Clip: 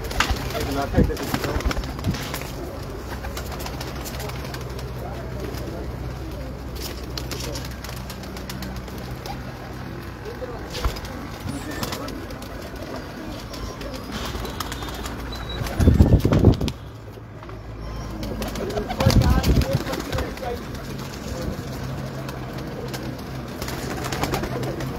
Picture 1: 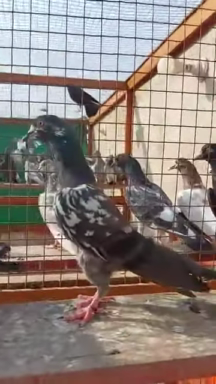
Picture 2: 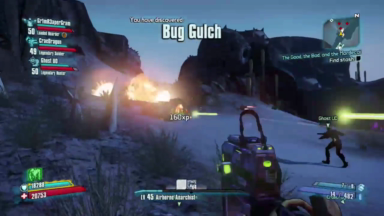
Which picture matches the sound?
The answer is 1